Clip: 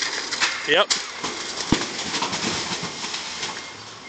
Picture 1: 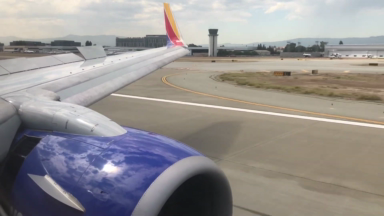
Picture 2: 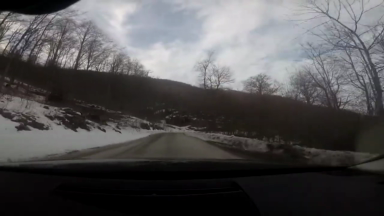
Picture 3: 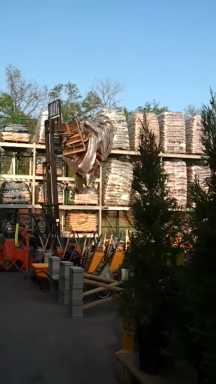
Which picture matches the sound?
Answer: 3